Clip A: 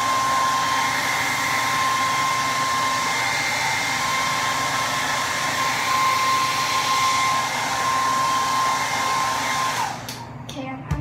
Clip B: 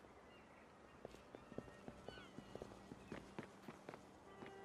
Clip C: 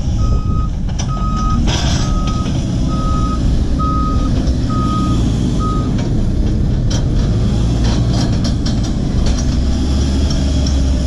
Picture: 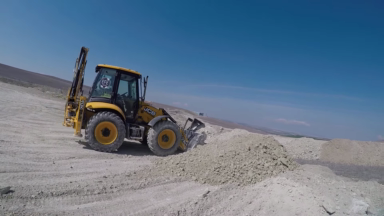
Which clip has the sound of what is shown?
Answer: C